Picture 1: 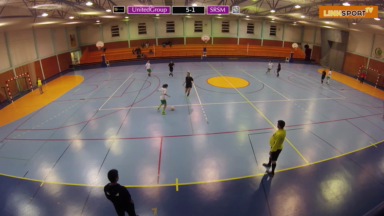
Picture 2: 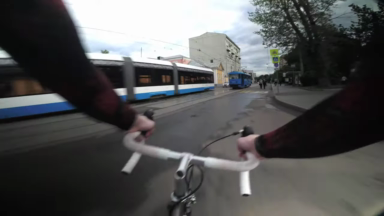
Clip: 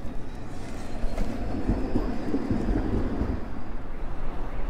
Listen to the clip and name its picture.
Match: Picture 2